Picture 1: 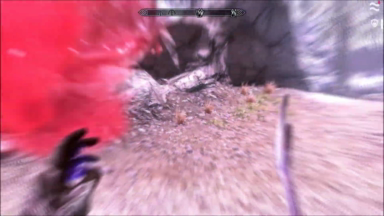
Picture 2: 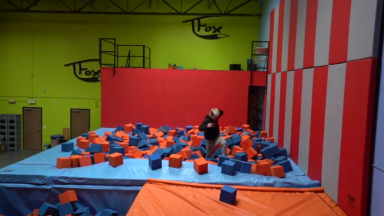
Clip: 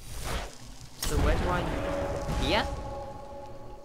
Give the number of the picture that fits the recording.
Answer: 1